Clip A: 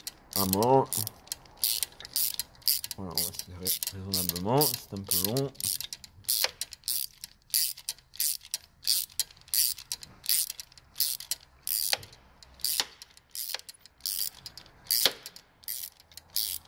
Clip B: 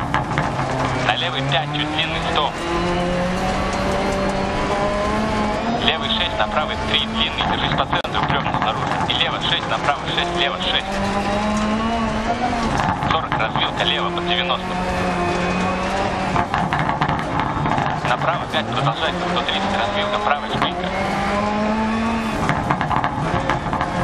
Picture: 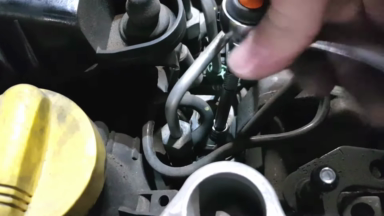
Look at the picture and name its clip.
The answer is A